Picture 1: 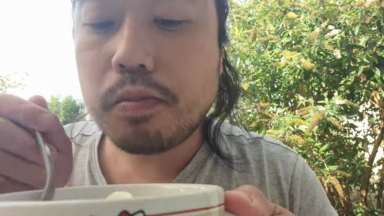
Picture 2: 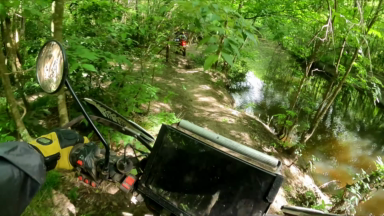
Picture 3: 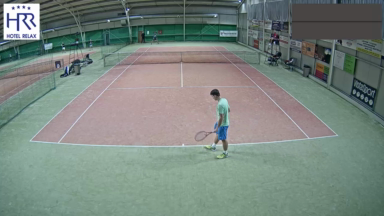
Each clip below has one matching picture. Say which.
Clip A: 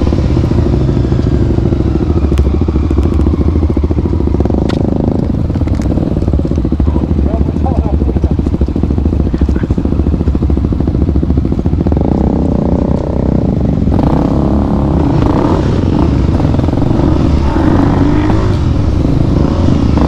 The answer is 2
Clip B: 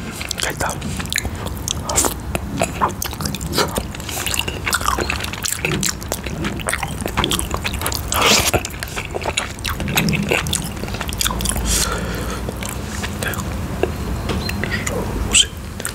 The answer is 1